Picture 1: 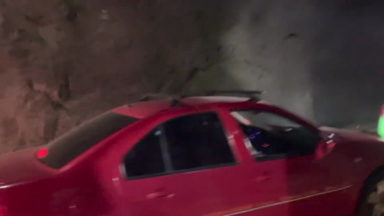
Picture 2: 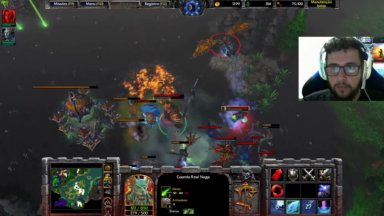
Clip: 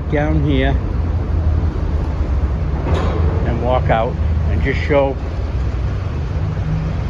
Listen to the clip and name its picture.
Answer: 1